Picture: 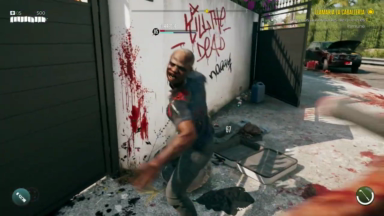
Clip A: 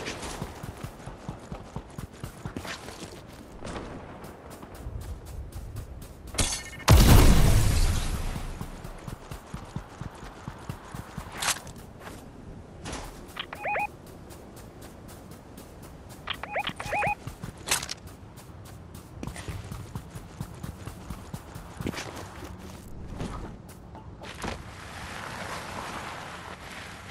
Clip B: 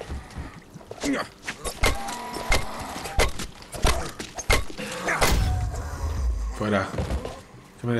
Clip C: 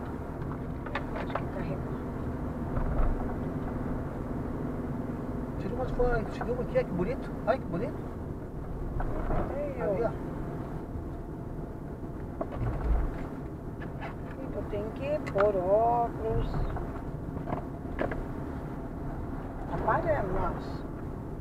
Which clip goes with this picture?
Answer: B